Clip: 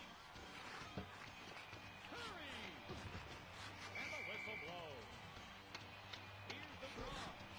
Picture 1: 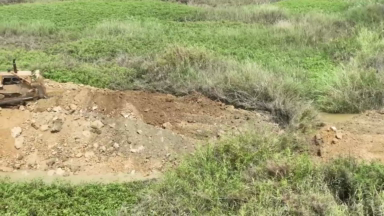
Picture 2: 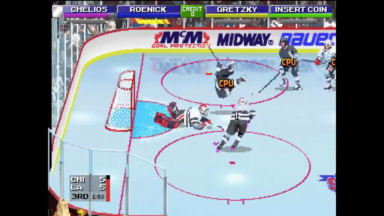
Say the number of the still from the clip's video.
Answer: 2